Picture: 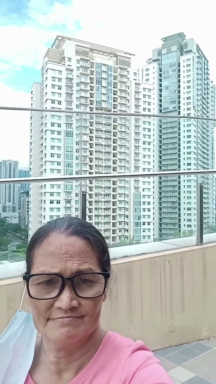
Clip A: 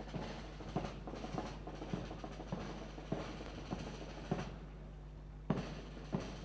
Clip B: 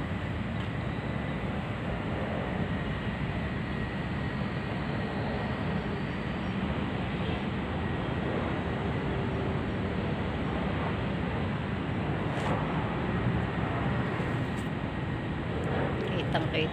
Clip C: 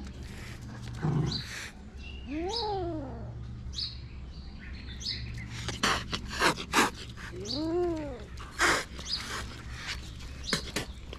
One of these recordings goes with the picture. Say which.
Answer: B